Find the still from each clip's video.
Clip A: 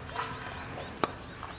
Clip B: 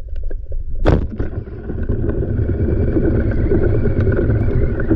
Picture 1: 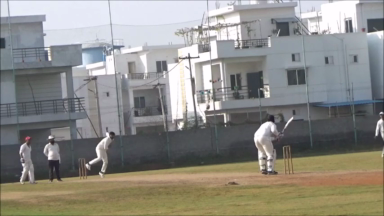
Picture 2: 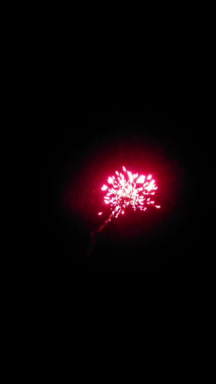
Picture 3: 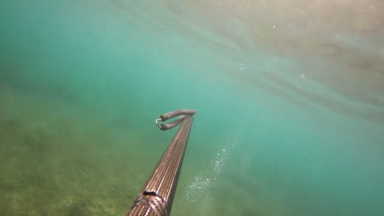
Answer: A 1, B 3